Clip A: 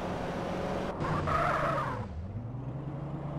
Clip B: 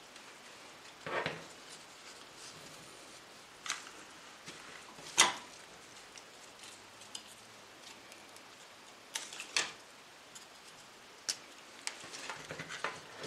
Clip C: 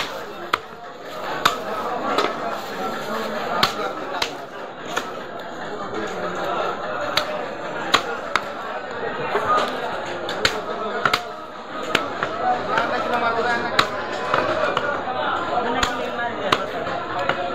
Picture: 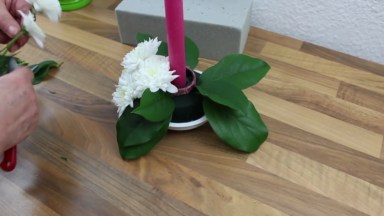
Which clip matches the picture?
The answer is B